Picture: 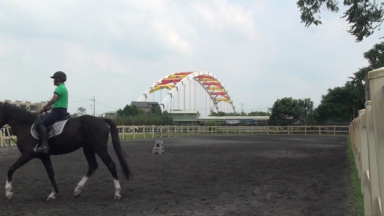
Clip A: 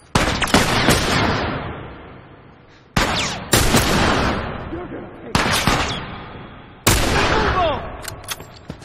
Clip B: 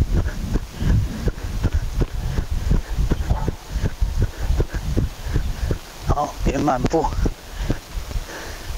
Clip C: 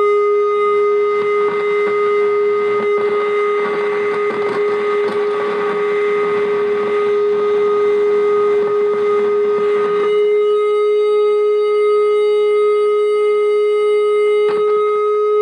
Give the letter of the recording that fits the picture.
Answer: B